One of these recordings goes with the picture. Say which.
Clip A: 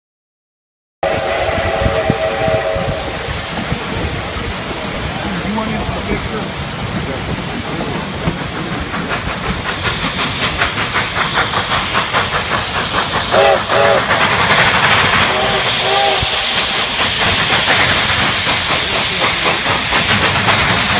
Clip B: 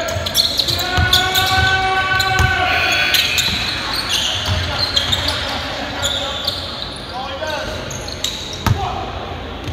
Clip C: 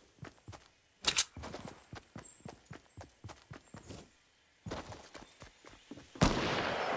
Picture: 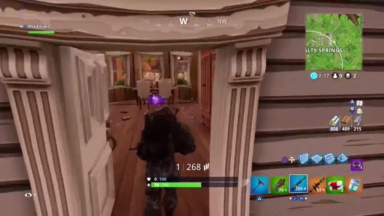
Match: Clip C